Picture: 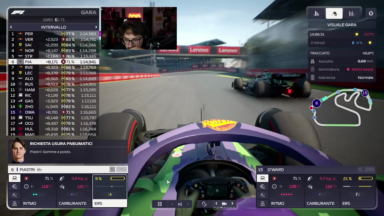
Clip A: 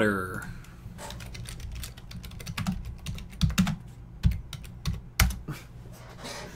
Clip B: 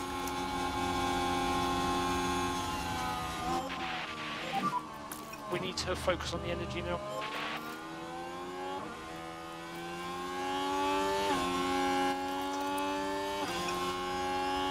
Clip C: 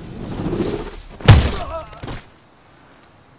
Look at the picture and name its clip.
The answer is B